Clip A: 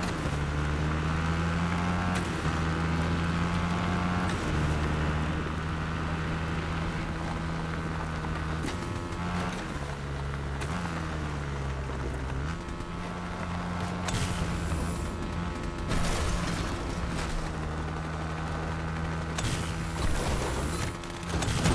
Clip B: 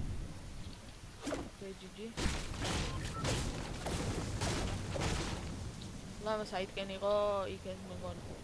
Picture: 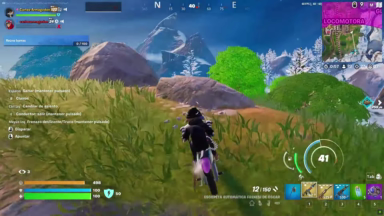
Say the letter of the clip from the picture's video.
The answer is A